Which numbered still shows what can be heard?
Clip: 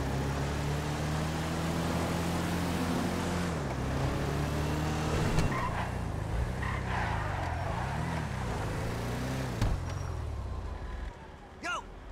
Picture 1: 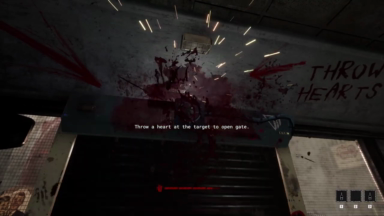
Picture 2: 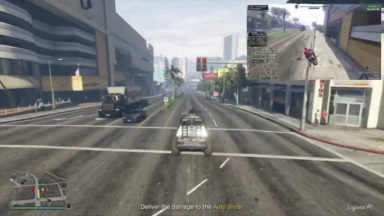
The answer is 2